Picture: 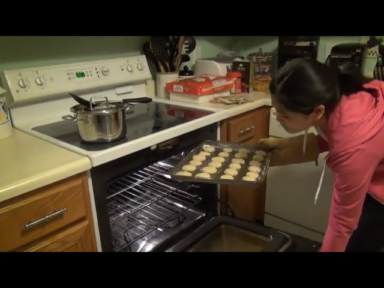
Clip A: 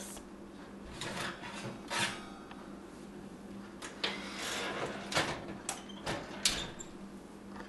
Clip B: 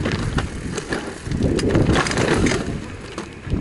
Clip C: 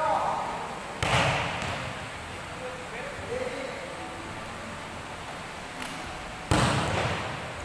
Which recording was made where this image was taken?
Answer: A